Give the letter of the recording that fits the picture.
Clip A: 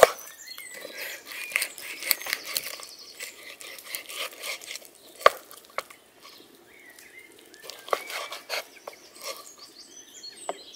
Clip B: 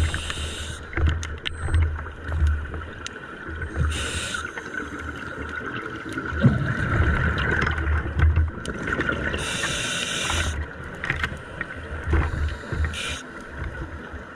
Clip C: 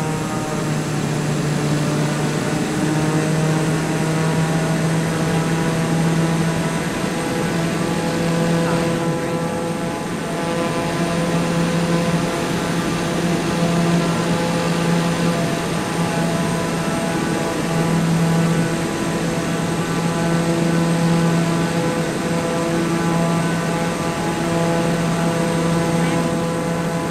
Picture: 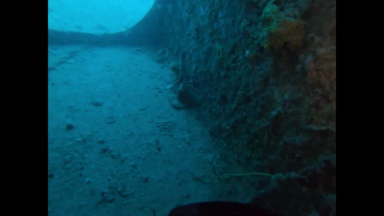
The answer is B